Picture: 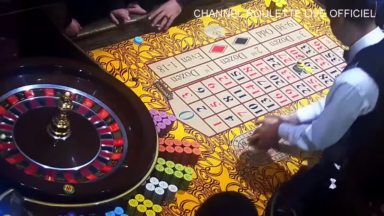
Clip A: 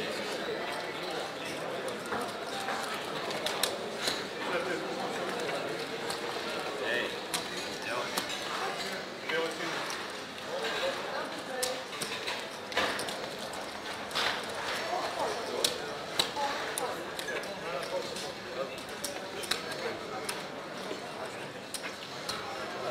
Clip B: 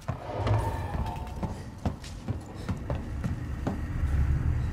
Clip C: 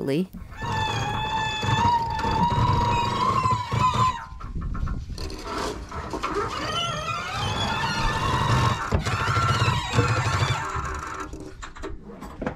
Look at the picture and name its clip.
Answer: A